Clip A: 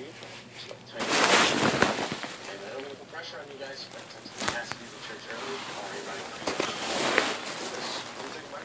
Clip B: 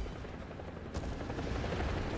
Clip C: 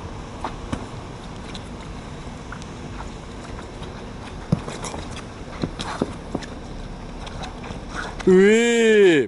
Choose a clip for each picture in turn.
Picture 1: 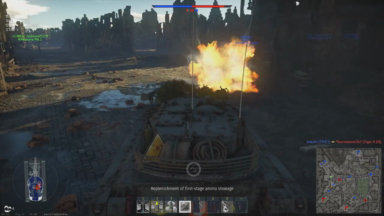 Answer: B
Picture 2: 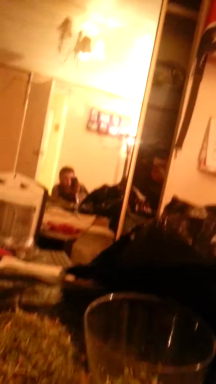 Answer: A